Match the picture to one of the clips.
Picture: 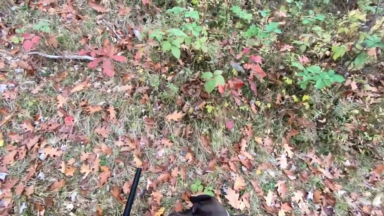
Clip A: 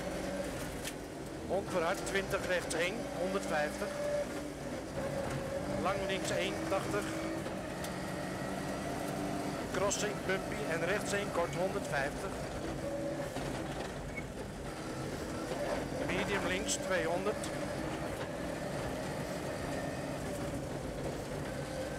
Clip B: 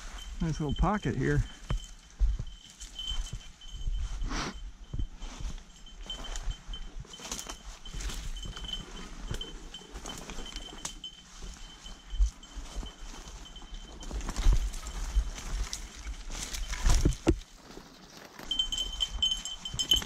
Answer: B